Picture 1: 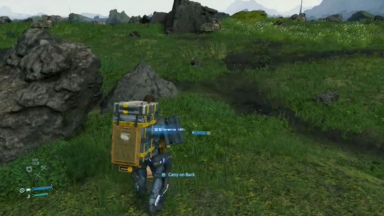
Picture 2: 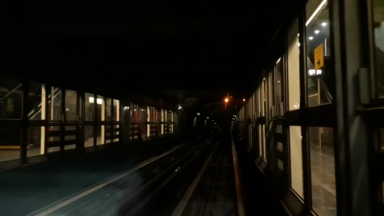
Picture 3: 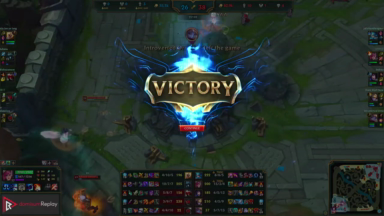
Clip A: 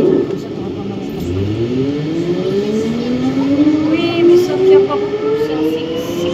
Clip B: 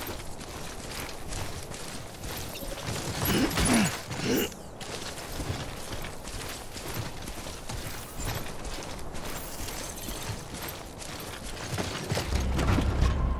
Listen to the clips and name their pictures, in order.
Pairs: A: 2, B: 1